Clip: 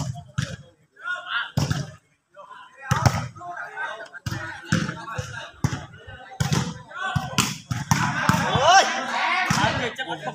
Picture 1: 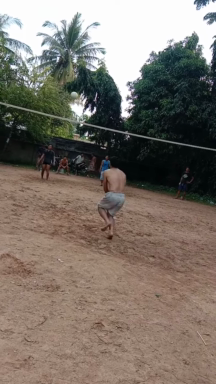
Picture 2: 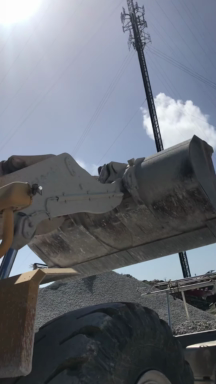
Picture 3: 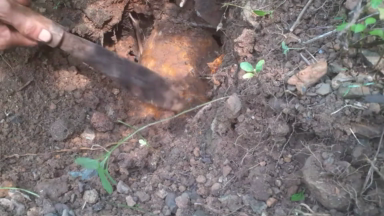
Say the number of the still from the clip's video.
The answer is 1